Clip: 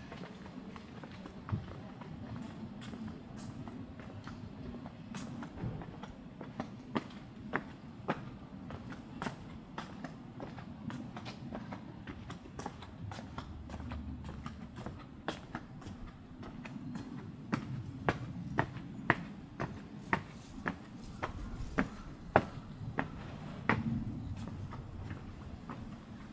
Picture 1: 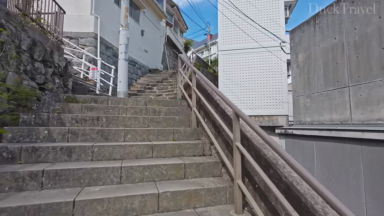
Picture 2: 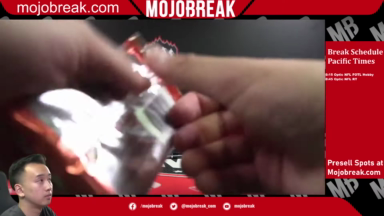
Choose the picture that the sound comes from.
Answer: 1